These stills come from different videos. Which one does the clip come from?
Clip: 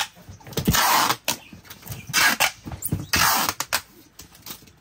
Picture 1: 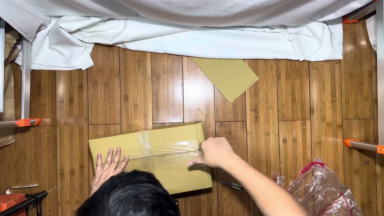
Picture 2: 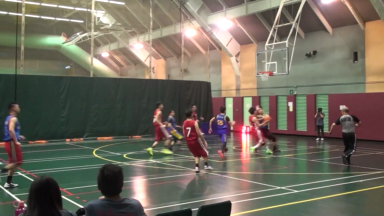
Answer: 1